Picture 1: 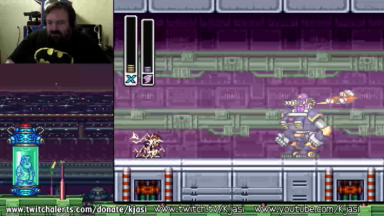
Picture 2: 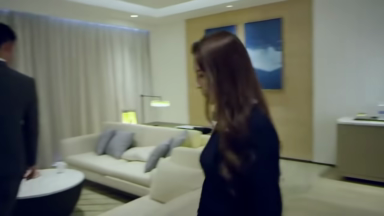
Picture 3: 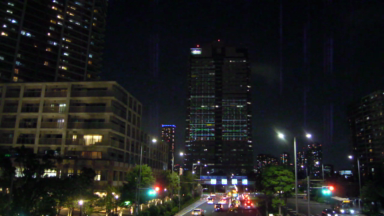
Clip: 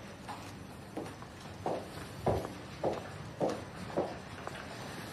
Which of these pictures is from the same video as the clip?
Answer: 2